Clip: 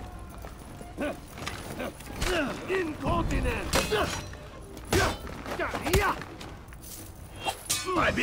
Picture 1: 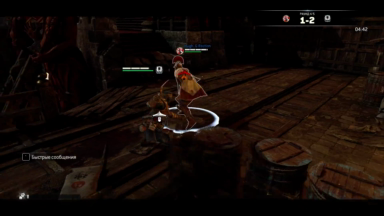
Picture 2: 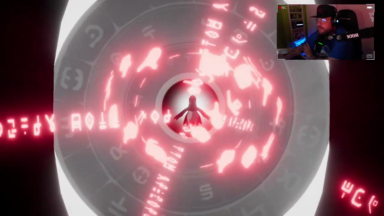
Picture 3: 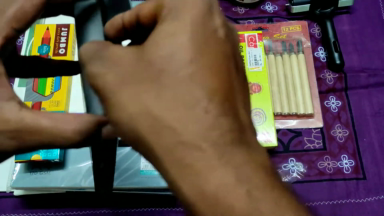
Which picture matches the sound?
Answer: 1